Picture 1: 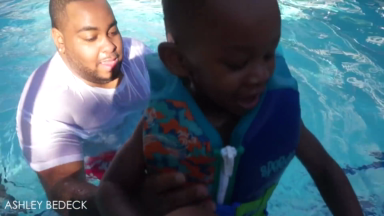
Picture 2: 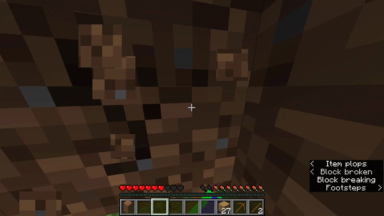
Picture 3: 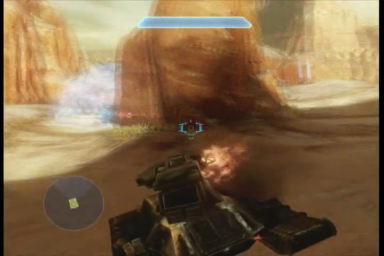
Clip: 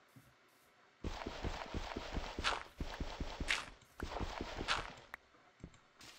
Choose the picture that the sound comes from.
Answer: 2